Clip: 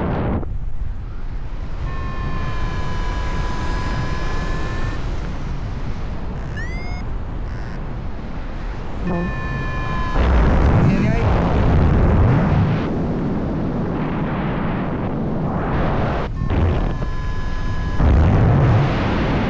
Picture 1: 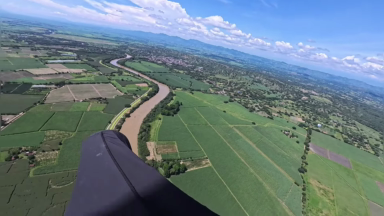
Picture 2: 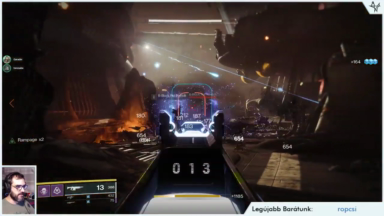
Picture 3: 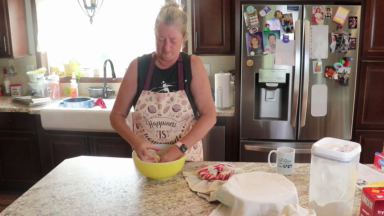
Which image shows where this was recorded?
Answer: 1